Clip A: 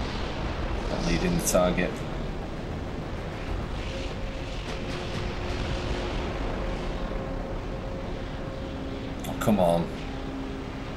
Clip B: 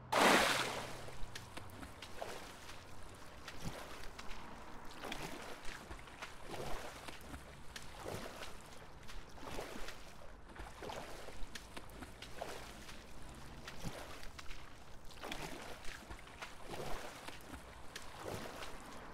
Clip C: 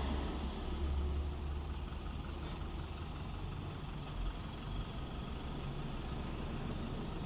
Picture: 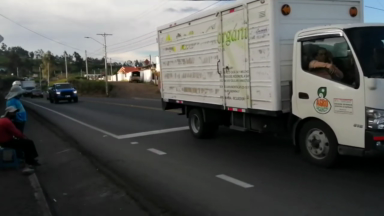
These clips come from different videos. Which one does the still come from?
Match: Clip C